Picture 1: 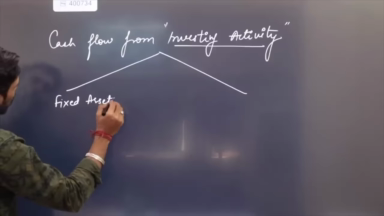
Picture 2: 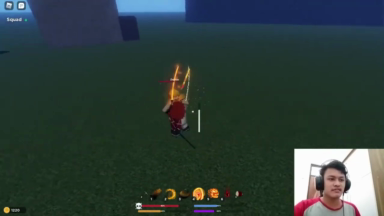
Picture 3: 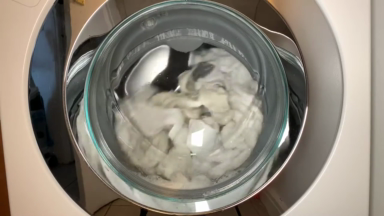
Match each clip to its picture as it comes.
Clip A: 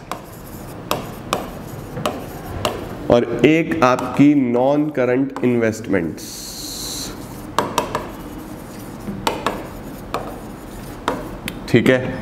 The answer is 1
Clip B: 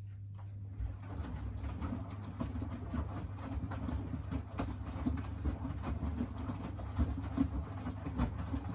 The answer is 3